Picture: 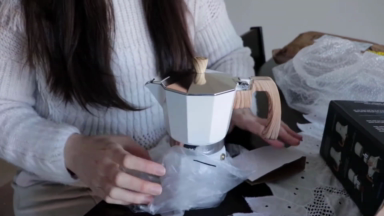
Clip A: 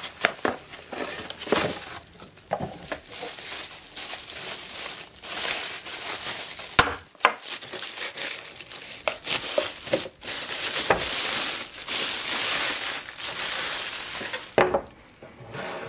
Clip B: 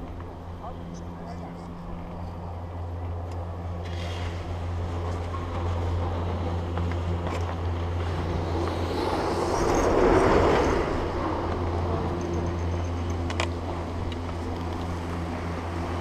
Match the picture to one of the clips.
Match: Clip A